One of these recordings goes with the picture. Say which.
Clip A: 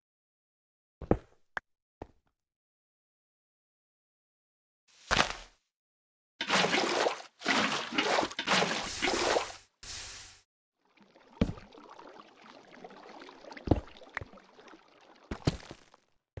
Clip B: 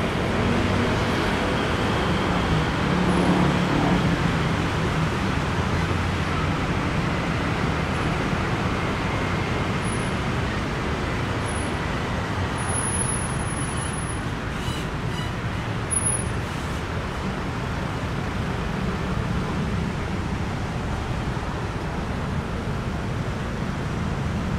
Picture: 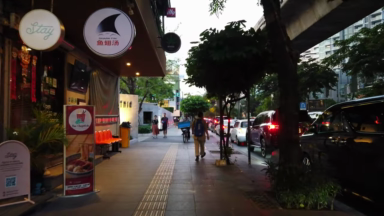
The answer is B